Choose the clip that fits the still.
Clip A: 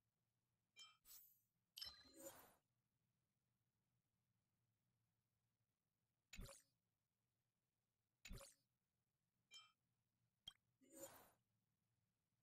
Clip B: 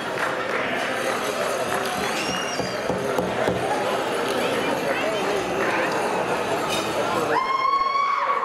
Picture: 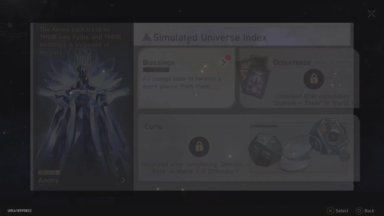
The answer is A